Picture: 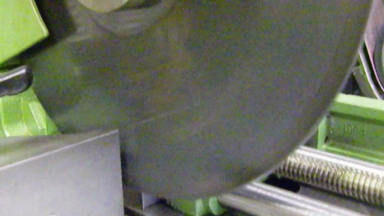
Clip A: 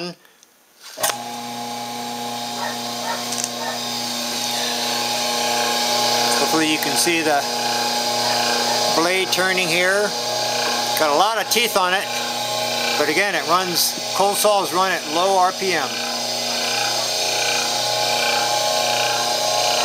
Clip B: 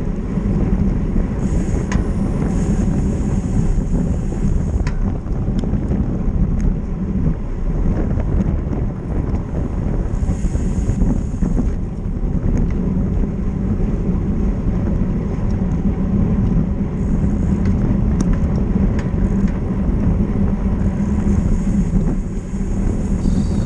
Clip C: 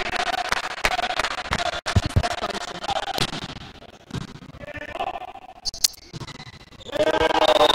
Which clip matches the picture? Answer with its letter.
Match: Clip A